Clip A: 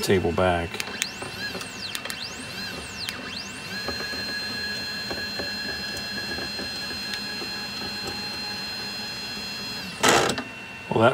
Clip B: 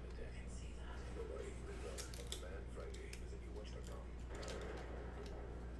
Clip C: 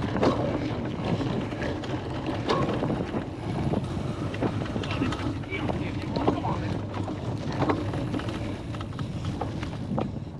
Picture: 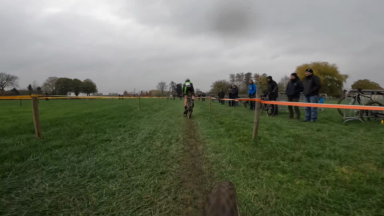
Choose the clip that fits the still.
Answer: C